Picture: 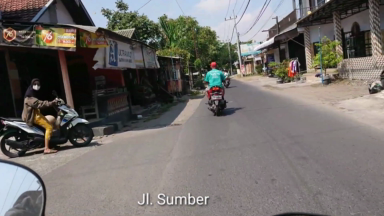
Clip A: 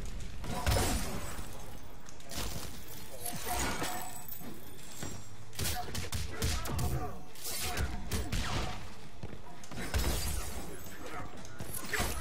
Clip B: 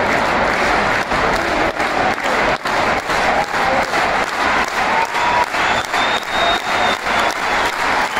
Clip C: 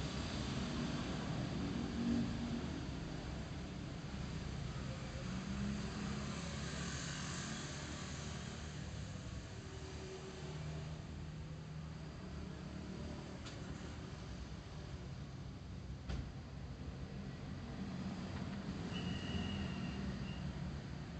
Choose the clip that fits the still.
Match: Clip C